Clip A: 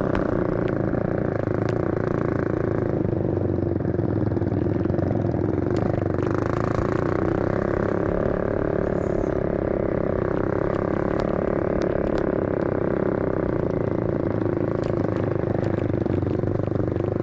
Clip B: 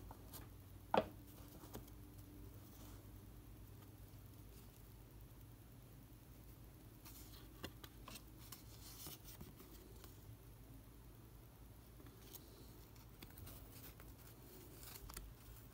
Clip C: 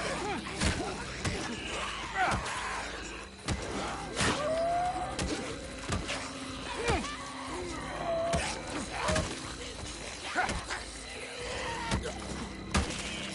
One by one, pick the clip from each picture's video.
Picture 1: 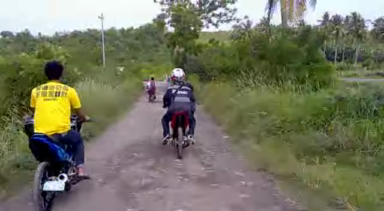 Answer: A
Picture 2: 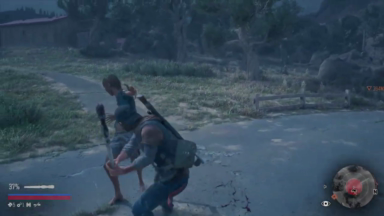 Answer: C